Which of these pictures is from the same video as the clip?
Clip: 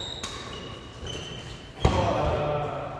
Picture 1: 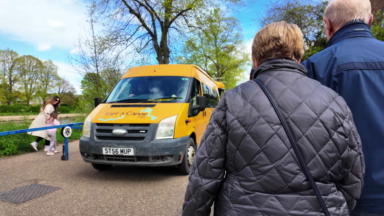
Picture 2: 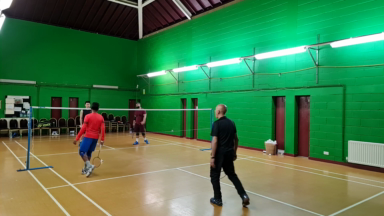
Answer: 2